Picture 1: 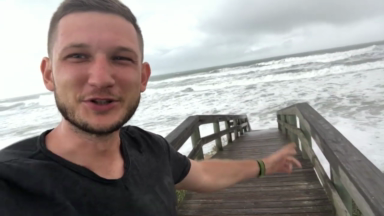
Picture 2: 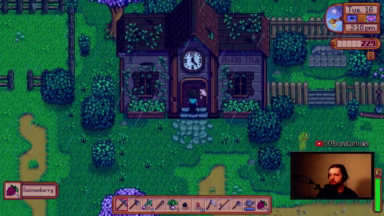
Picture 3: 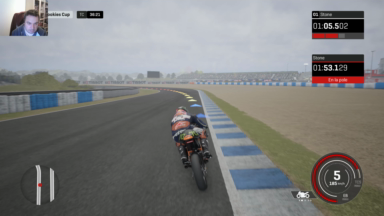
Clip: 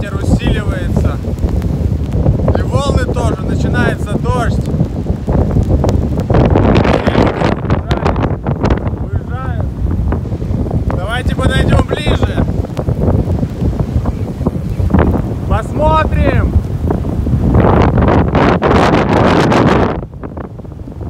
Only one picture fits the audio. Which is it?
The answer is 1